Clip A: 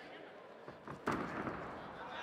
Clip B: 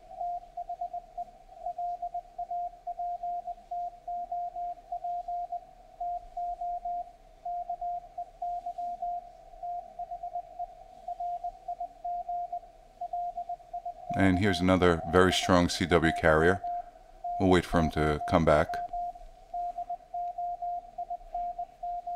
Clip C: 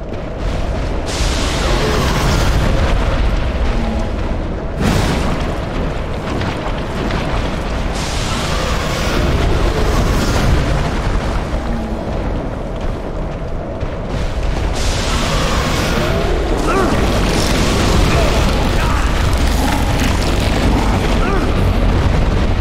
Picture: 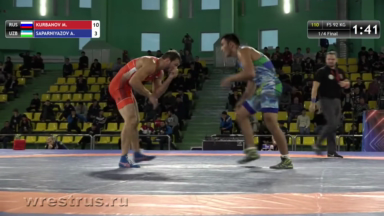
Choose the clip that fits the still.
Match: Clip A